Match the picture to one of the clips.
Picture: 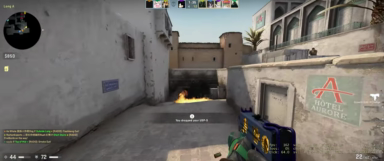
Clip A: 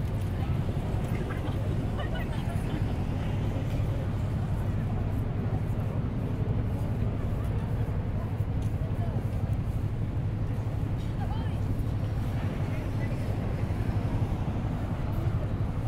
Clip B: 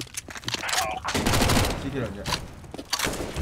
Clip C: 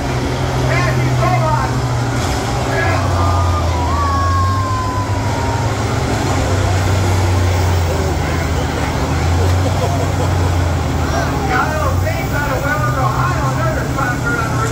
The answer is B